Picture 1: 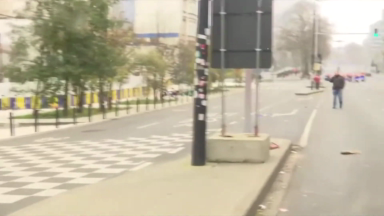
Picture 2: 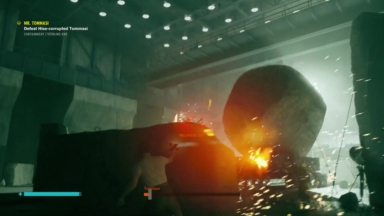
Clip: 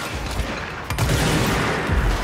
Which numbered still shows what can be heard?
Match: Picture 2